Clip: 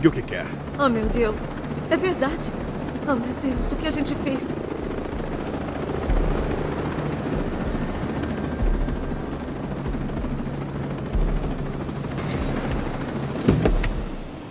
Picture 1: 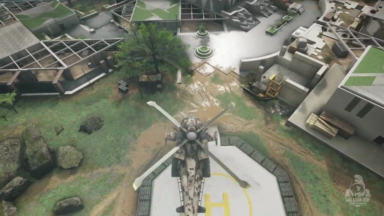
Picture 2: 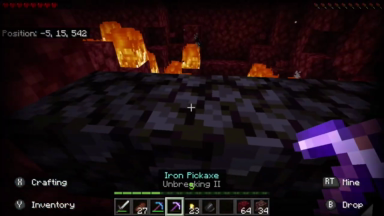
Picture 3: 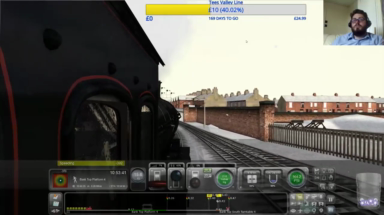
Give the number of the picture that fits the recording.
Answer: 1